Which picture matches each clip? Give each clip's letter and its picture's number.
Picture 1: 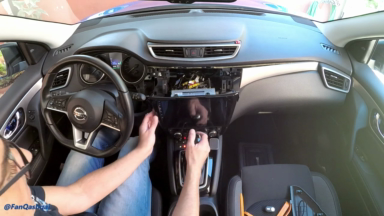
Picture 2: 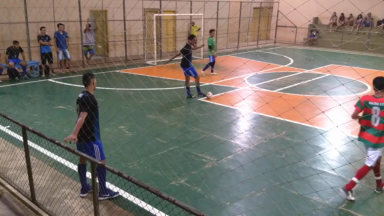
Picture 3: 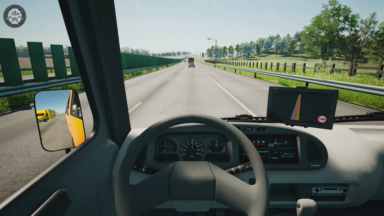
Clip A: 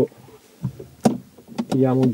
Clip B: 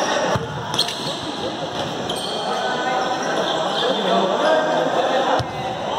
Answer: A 1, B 2